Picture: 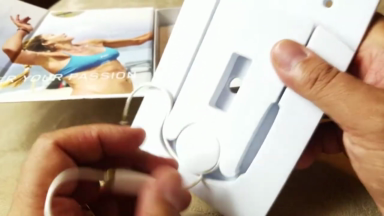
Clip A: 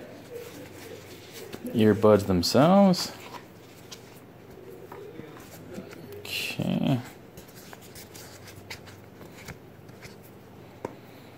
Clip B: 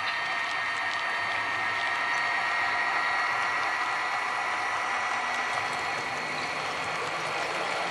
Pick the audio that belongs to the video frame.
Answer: A